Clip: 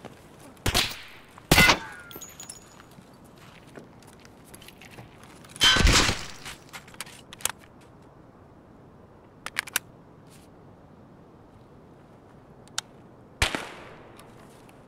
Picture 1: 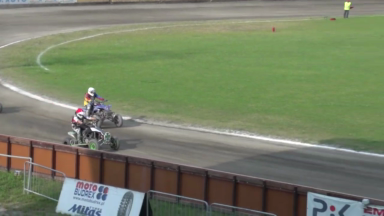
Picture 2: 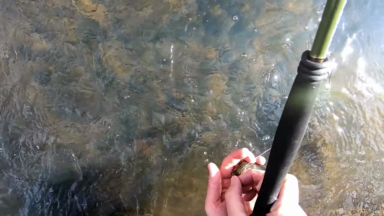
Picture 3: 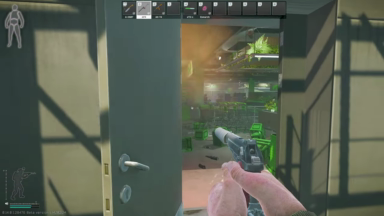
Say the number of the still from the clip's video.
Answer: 3